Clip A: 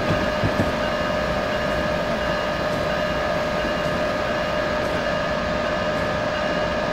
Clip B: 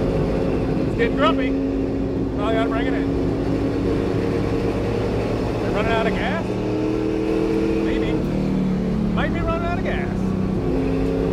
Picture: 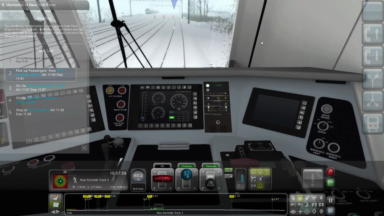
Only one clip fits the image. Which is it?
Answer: A